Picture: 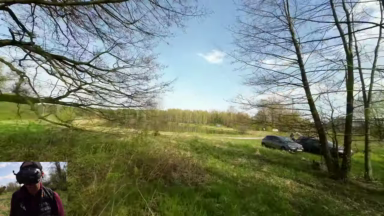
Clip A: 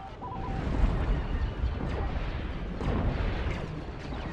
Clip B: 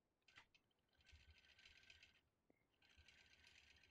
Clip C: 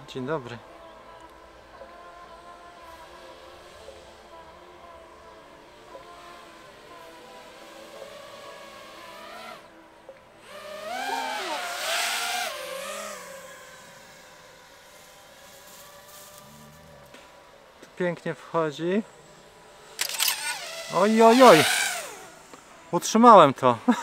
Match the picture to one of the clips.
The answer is C